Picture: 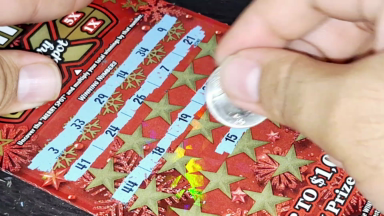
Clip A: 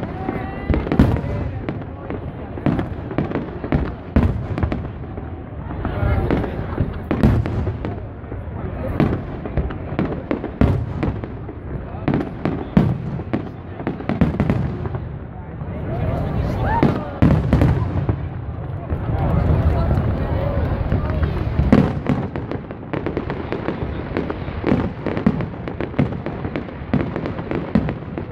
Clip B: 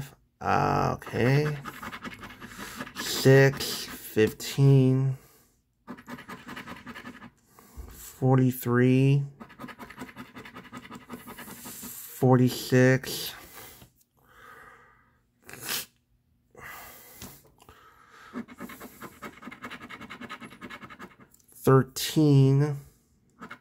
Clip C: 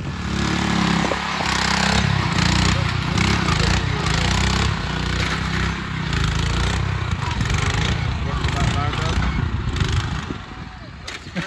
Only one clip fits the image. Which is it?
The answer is B